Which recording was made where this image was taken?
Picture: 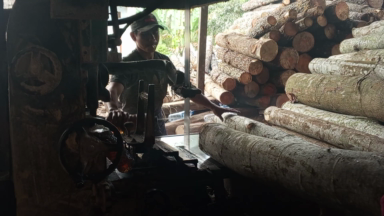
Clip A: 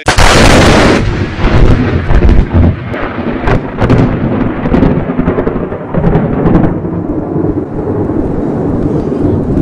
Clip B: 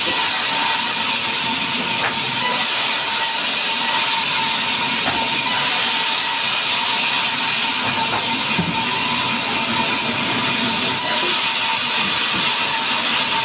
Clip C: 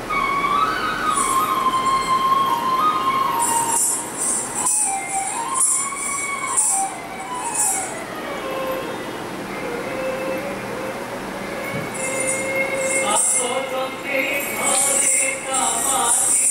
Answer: B